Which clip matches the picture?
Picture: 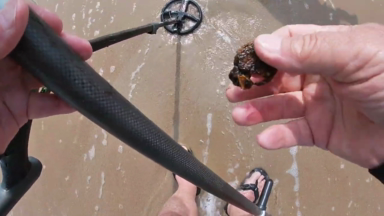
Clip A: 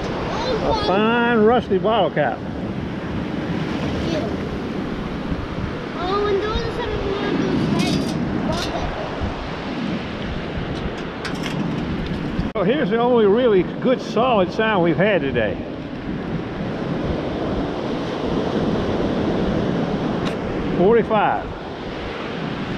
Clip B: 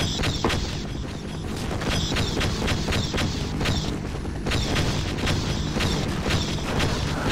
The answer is A